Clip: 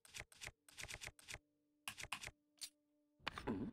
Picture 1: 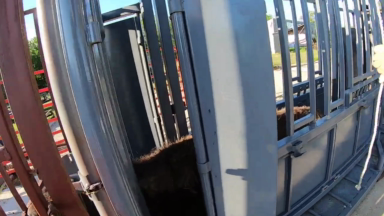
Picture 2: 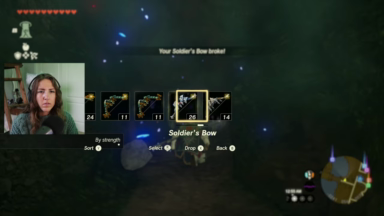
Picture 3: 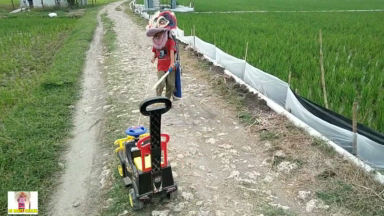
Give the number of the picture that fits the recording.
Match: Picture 2